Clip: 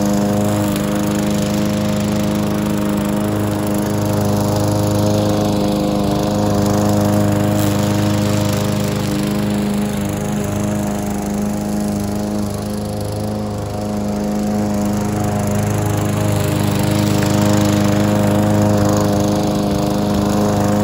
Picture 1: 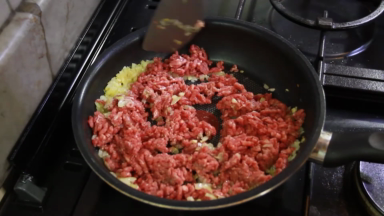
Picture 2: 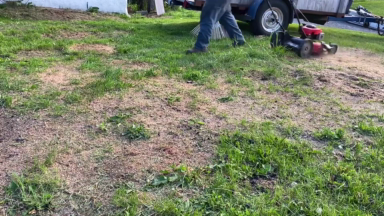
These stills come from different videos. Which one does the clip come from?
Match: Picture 2